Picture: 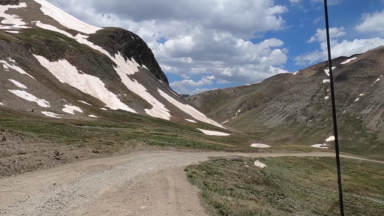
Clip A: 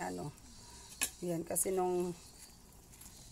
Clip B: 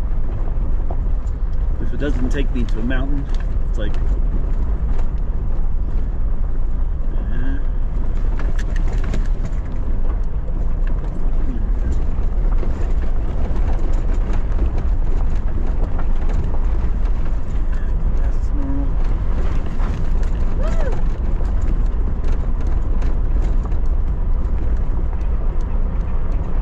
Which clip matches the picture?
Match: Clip B